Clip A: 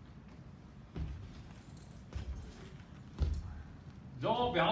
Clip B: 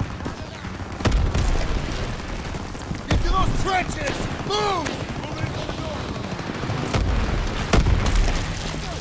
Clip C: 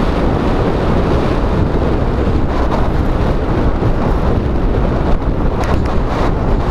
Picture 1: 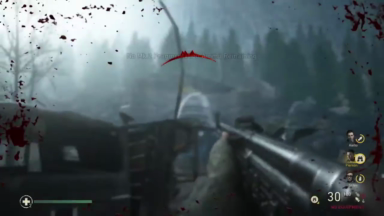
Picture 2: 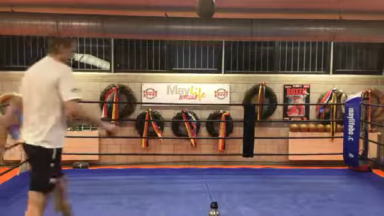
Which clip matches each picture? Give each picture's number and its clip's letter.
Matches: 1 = B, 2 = A